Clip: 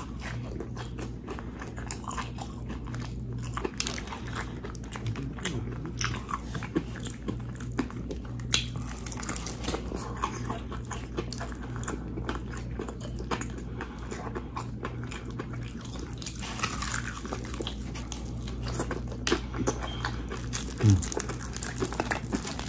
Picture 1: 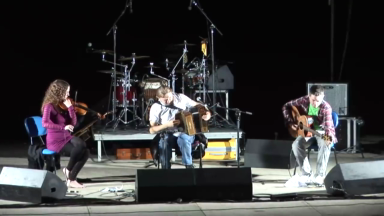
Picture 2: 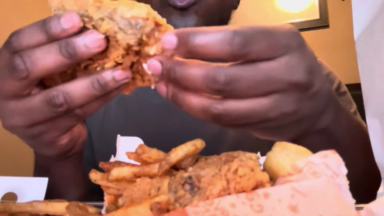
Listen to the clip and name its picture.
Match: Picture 2